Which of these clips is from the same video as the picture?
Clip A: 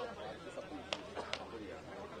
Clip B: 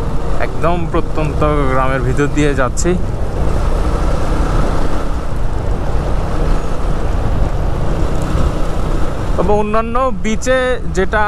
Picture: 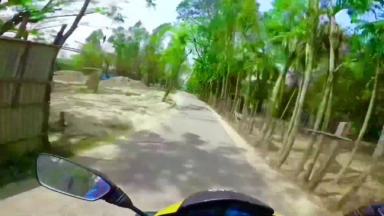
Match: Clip B